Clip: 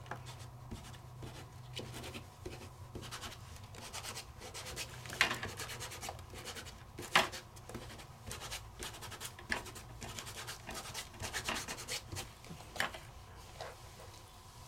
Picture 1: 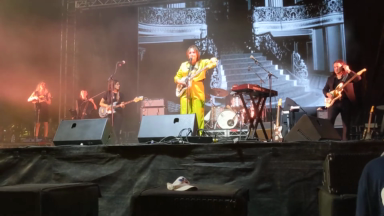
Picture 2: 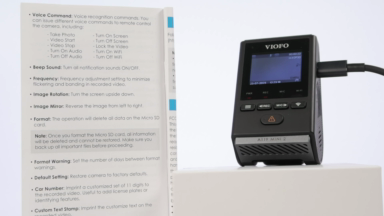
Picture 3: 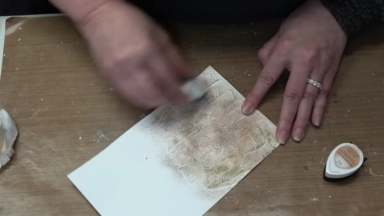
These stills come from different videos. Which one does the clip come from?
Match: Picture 3